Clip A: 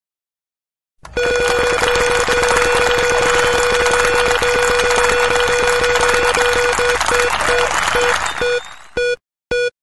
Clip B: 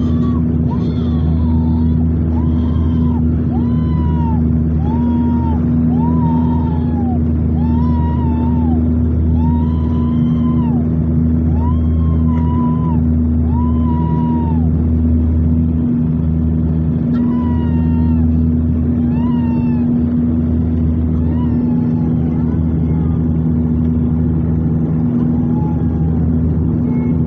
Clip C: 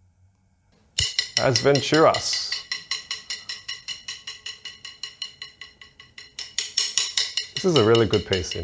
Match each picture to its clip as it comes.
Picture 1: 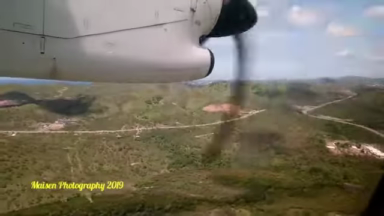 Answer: B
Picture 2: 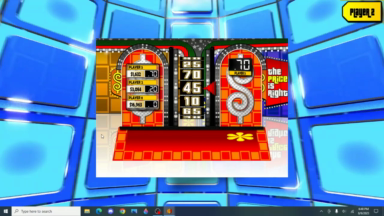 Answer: A